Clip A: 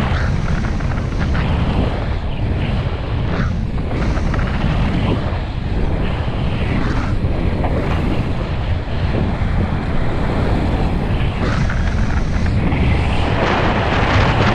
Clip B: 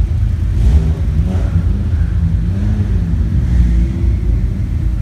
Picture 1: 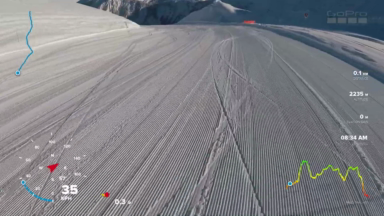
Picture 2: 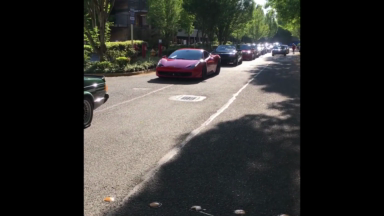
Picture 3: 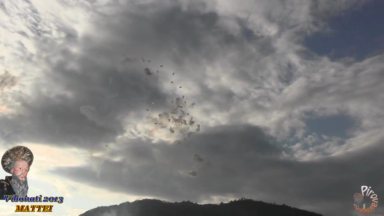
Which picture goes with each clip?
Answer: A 1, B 2